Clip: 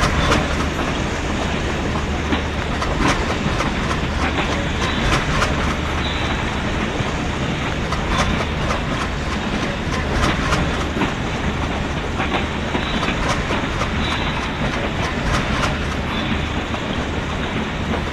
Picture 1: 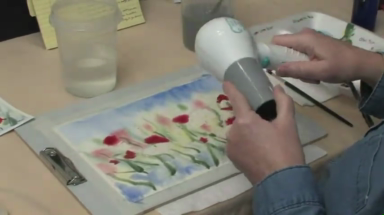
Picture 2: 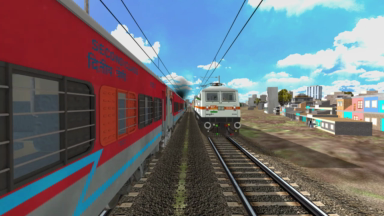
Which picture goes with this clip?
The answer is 2